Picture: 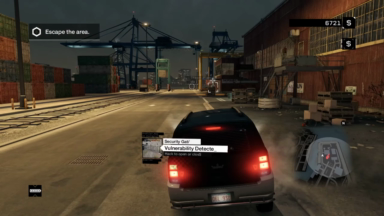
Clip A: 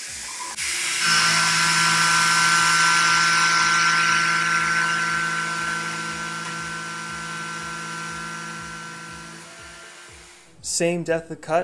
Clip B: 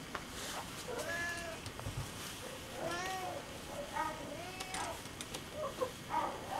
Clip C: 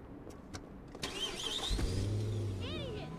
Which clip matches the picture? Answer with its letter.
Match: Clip C